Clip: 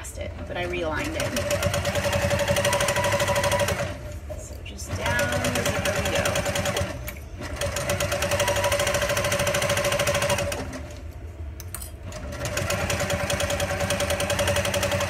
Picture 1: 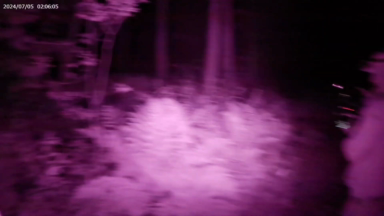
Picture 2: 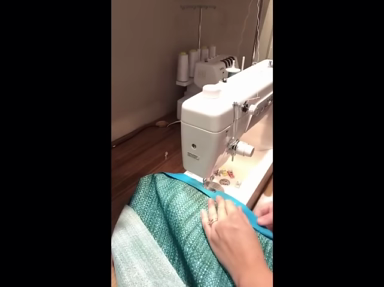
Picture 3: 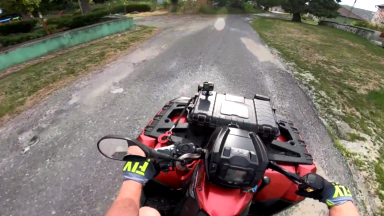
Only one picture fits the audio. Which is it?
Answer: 2